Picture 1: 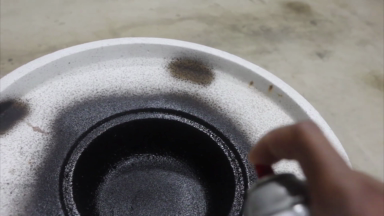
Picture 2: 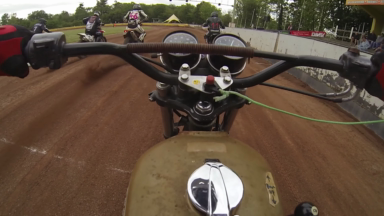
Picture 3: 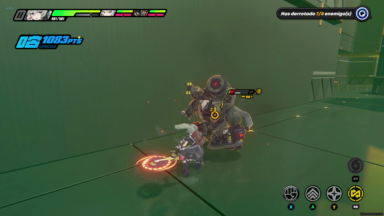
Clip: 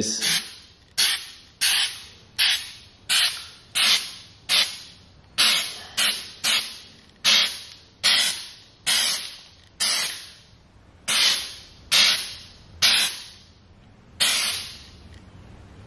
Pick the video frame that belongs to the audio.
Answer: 1